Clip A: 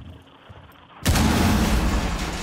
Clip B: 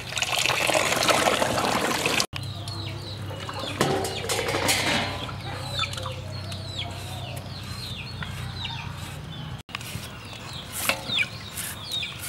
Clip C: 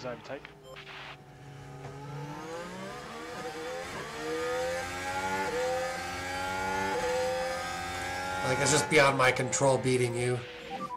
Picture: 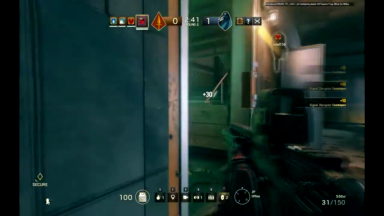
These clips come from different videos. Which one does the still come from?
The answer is A